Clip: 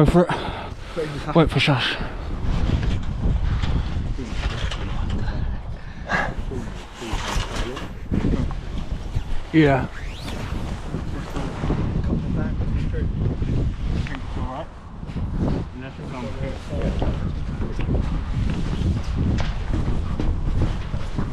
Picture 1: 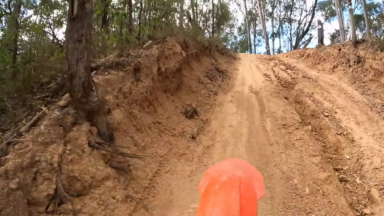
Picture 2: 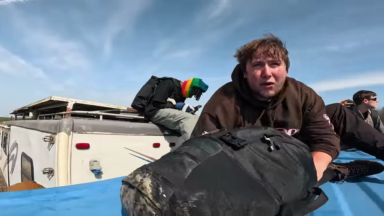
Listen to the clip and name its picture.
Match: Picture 2